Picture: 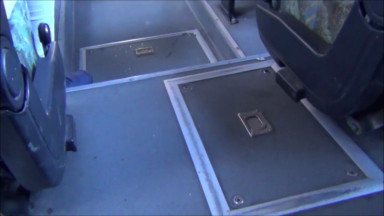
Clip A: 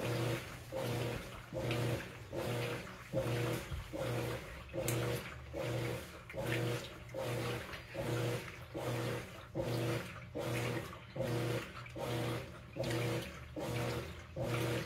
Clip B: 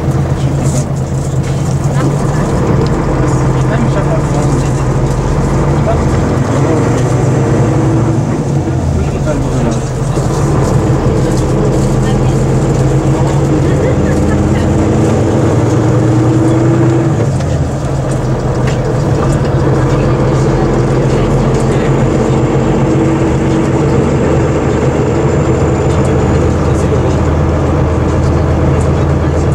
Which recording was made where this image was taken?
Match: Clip B